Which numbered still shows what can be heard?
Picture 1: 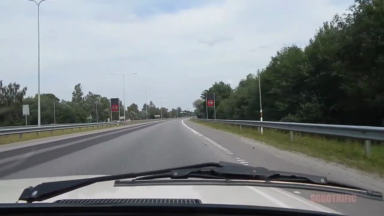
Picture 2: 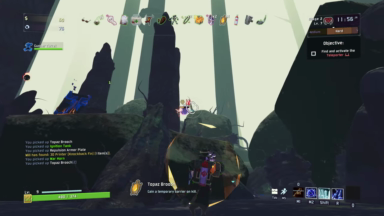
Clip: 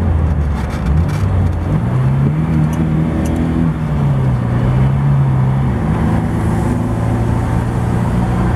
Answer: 1